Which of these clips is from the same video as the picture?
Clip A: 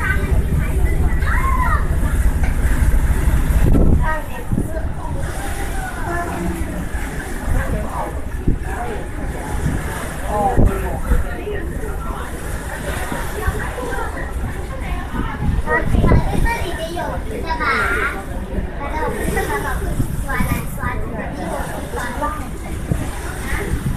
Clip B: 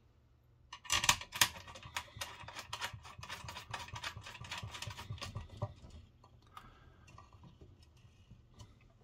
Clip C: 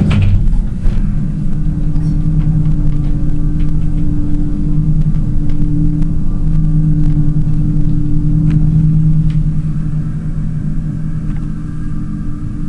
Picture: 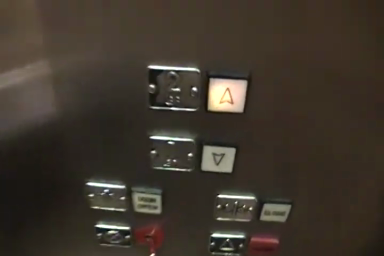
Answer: C